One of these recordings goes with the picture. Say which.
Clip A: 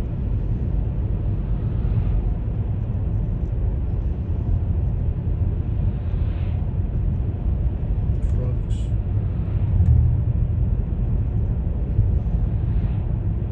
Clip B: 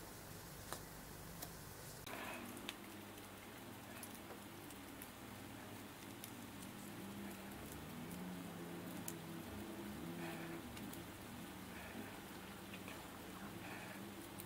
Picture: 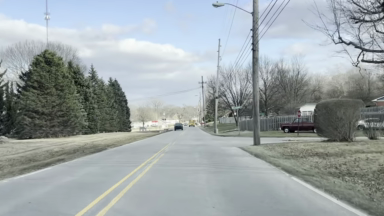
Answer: A